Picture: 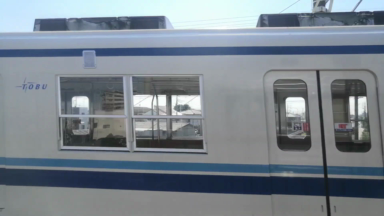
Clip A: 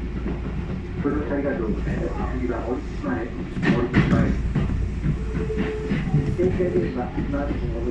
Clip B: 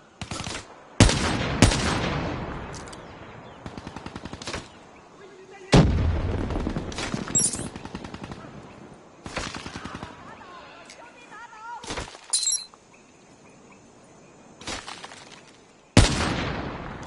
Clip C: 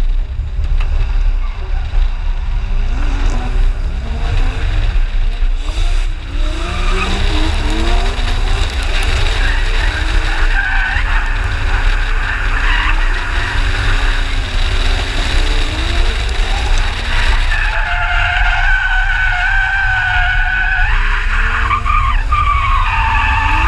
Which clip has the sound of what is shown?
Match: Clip A